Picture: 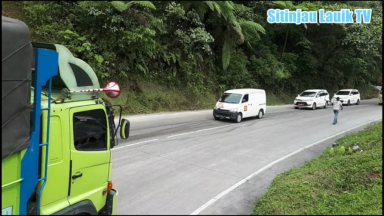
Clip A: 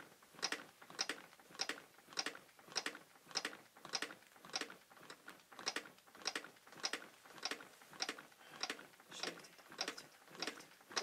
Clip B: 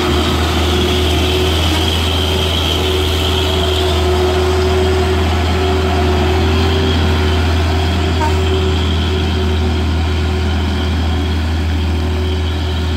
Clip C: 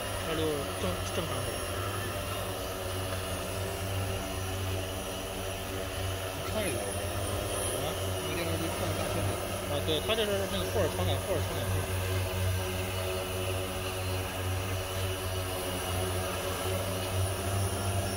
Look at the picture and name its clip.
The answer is B